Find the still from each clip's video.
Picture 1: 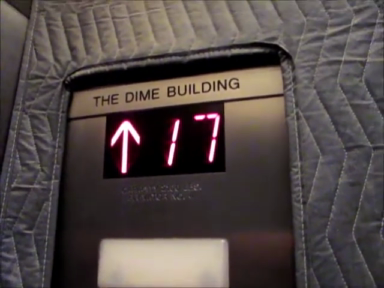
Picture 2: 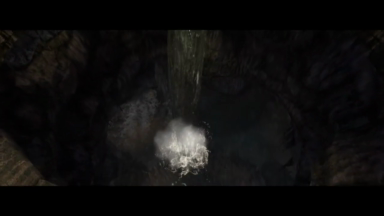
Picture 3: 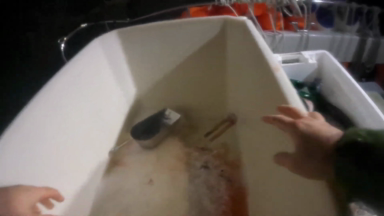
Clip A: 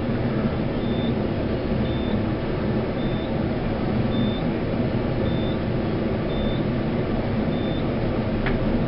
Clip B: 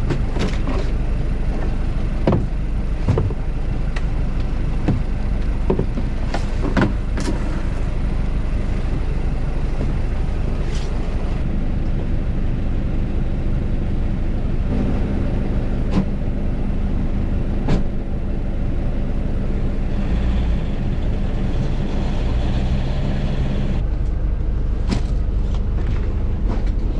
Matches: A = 1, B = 3